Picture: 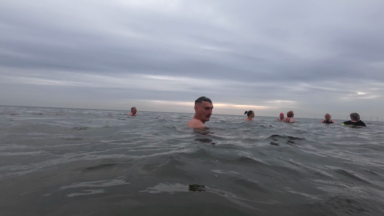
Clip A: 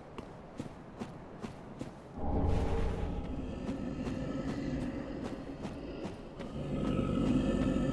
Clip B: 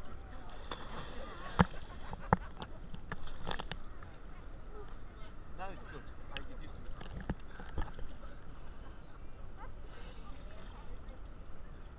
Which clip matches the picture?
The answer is B